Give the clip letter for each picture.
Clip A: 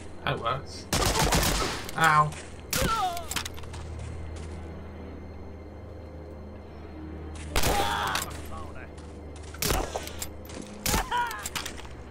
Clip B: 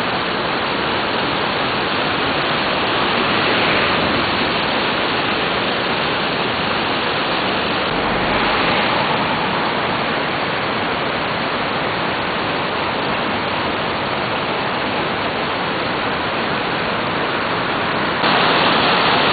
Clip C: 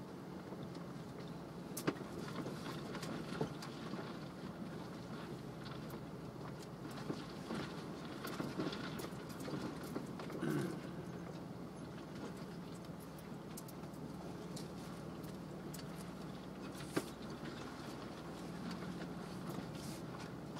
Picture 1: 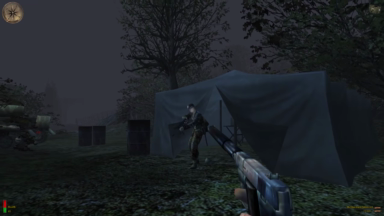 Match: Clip A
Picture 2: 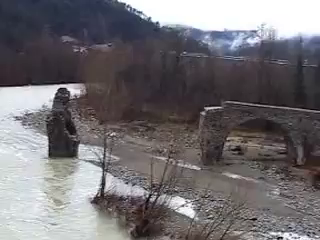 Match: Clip B